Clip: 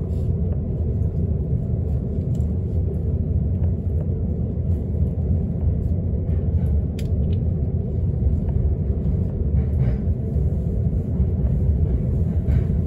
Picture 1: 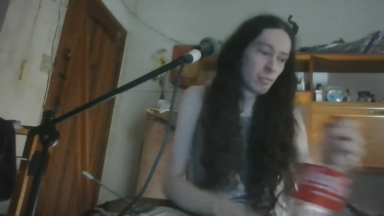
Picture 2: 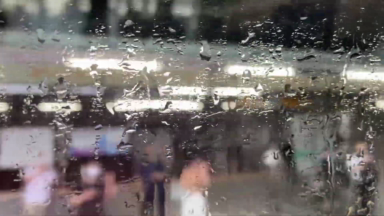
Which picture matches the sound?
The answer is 2